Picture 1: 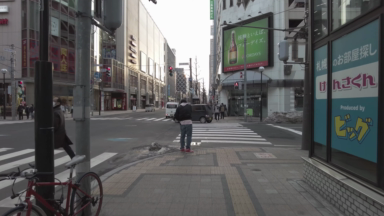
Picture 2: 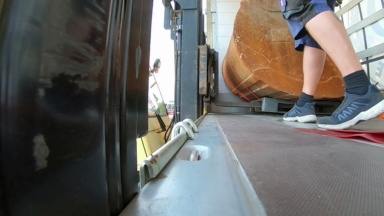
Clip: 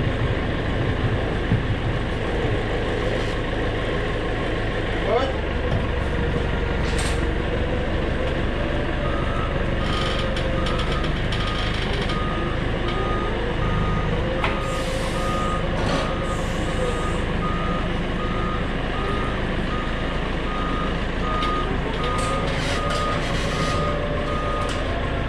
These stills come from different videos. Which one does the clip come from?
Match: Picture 2